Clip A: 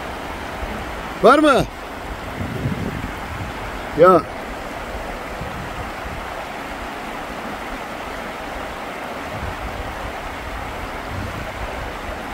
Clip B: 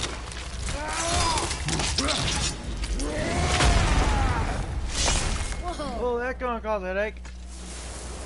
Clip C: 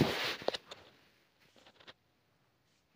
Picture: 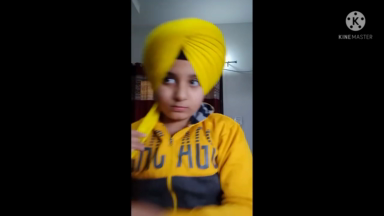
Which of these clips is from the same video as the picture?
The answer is C